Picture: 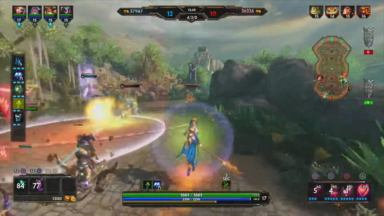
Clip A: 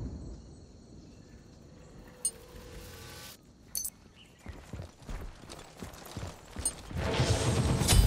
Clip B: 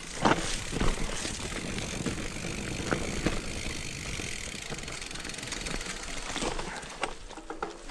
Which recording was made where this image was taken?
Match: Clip A